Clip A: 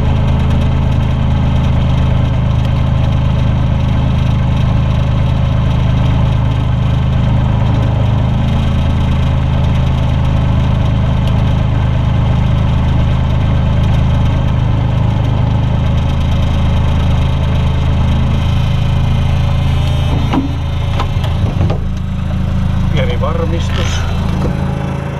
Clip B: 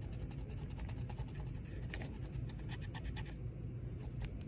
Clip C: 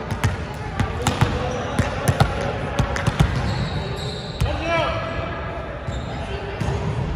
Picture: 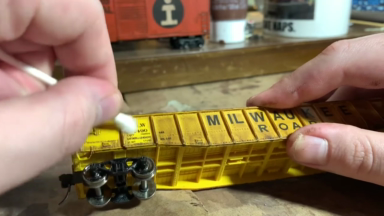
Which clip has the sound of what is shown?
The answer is B